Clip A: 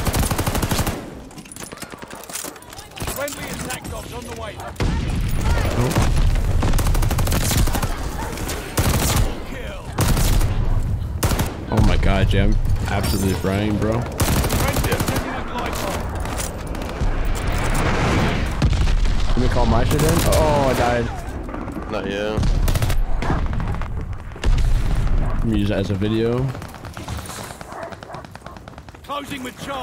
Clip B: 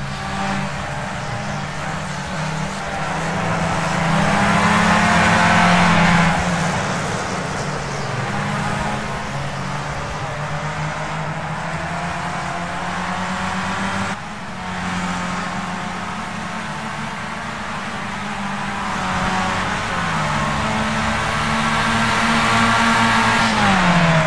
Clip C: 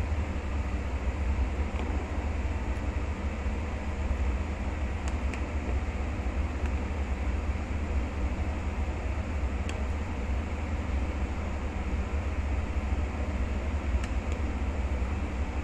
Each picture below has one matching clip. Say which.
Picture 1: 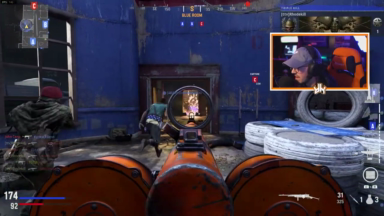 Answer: A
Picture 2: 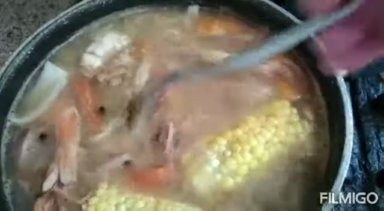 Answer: C